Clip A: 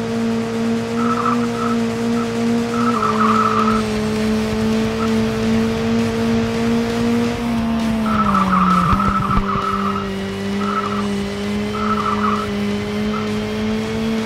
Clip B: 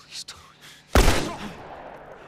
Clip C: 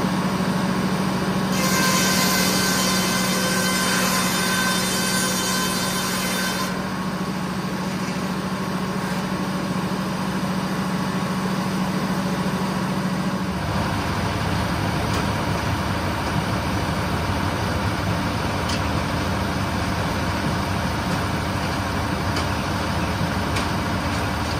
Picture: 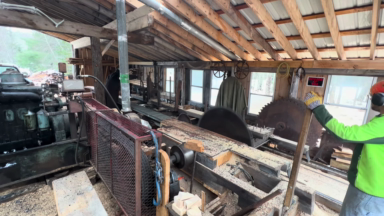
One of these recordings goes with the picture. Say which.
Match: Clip C